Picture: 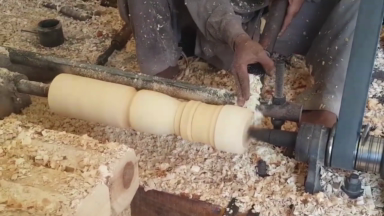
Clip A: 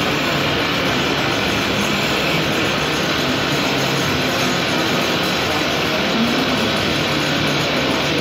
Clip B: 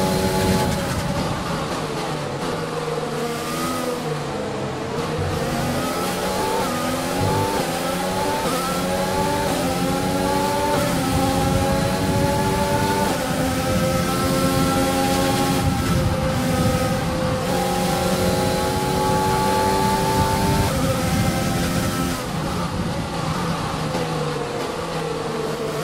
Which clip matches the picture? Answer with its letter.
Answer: A